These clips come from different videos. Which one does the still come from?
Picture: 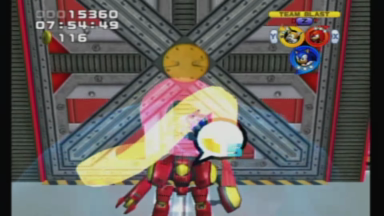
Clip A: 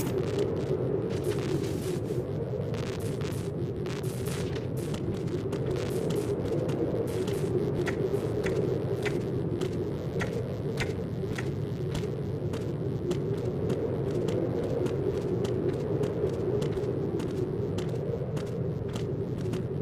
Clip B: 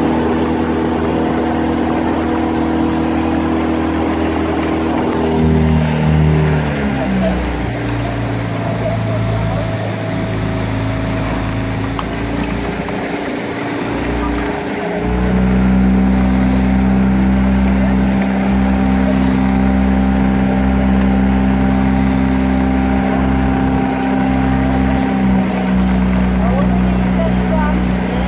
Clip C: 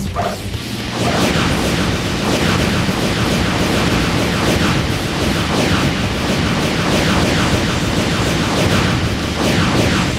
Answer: C